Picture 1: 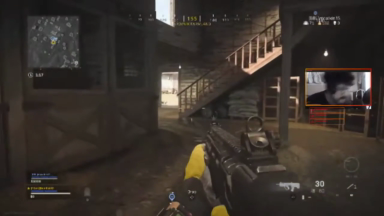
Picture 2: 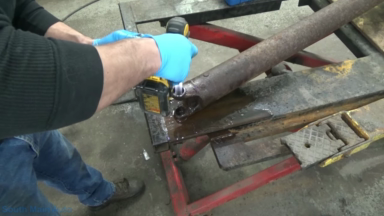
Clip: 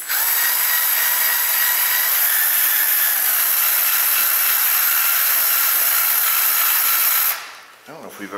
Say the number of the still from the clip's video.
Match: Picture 2